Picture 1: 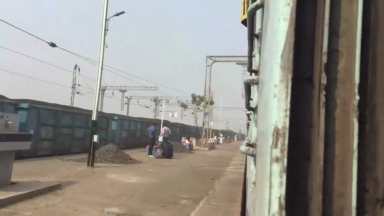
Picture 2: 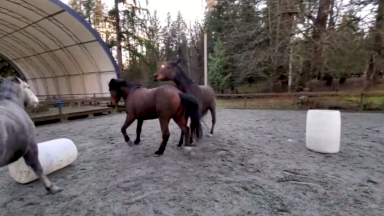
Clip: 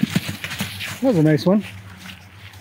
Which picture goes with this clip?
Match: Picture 2